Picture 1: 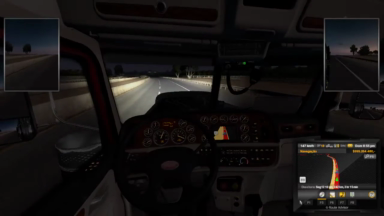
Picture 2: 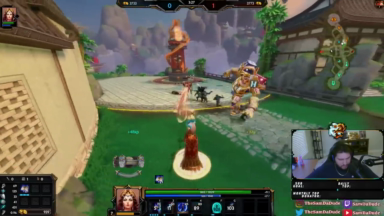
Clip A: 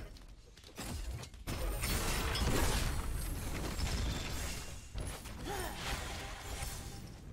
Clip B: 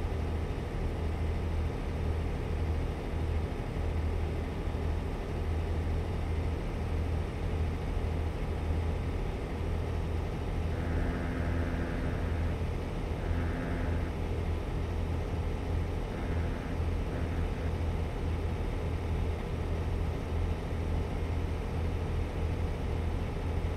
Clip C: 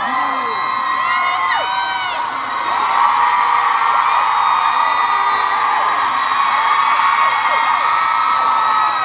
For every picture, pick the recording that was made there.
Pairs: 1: B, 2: A